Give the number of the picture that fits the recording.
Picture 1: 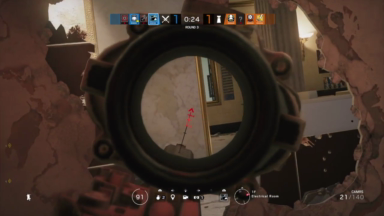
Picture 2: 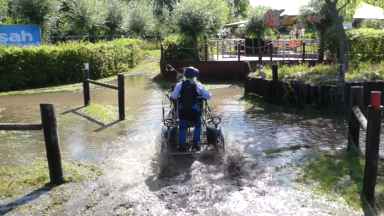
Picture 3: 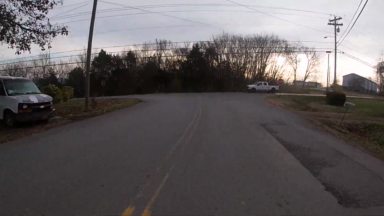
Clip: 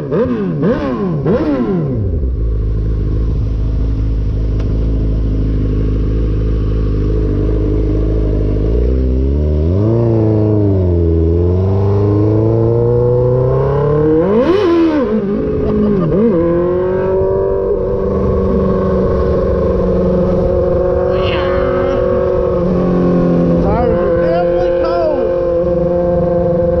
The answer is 3